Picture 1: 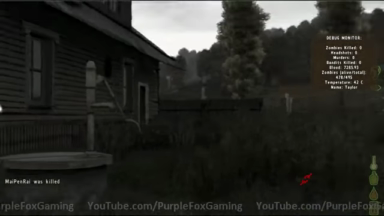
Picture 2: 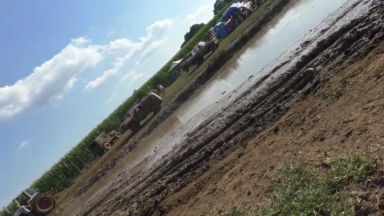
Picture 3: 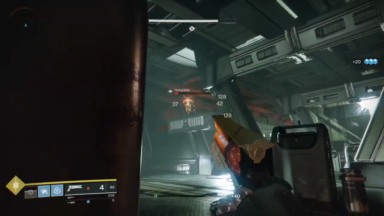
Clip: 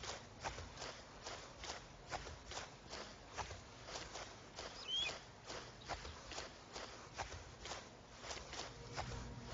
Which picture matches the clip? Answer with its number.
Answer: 1